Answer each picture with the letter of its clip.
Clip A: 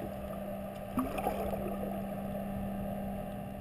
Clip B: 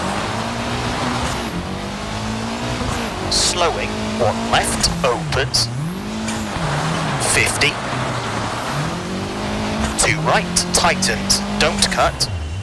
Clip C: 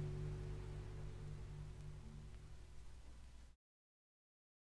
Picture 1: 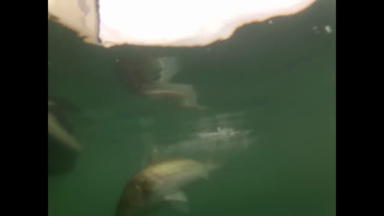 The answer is A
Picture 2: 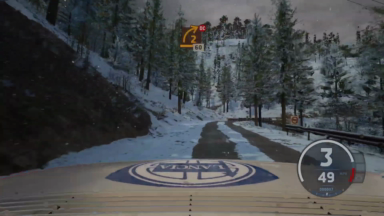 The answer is B